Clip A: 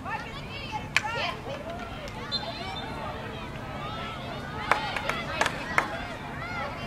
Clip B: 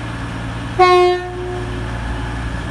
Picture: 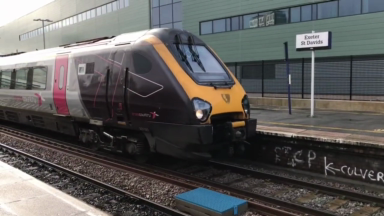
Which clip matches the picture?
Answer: B